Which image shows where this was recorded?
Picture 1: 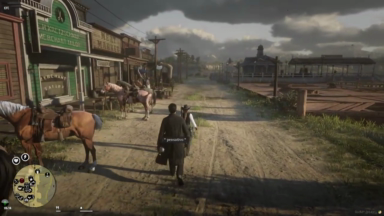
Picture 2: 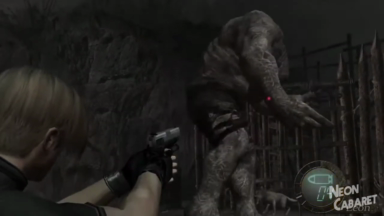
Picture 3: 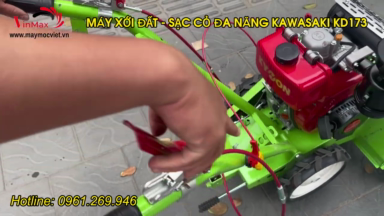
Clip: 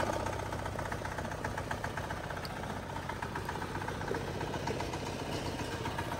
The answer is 3